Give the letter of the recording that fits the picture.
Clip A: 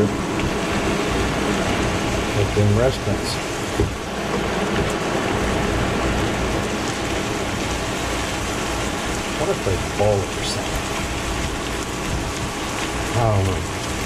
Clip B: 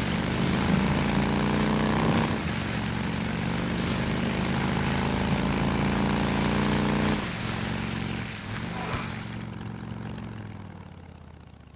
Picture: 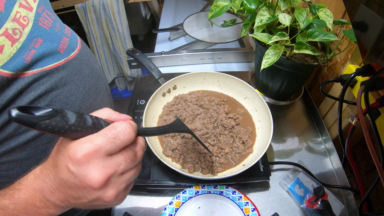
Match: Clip A